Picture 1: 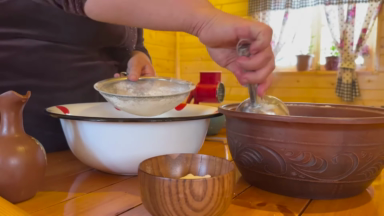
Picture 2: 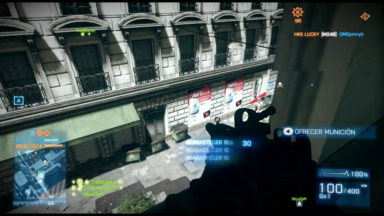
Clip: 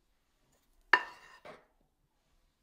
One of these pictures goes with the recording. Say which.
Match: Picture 1